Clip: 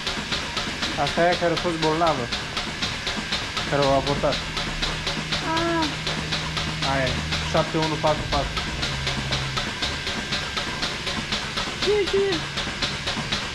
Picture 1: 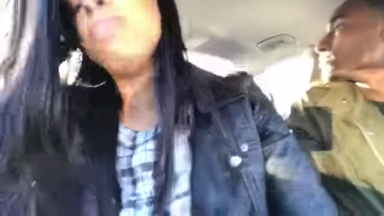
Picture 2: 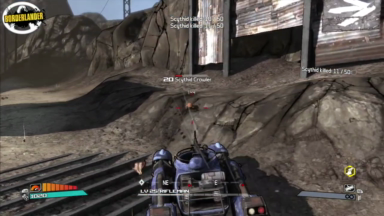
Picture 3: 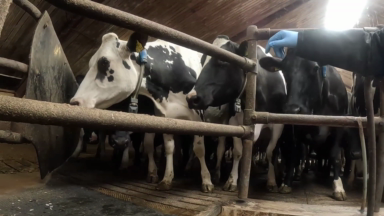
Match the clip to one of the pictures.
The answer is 3